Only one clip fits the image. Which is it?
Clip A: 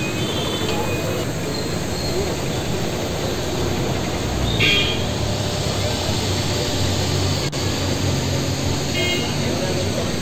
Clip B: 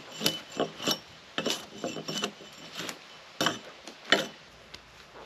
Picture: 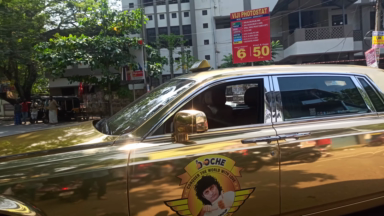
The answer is A